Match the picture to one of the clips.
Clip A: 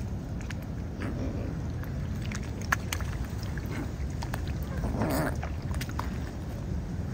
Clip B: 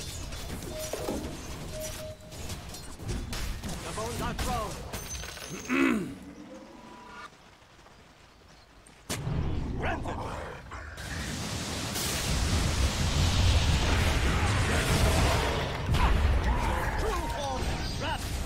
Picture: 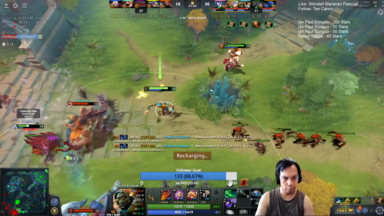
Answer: B